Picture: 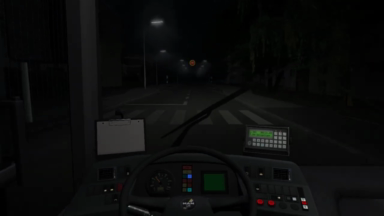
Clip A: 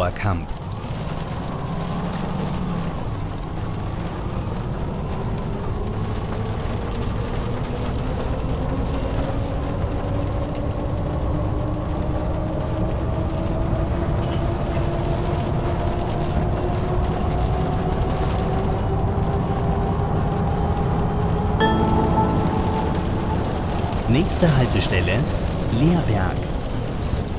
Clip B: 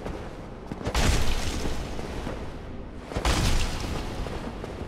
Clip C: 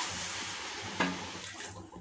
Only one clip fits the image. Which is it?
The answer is A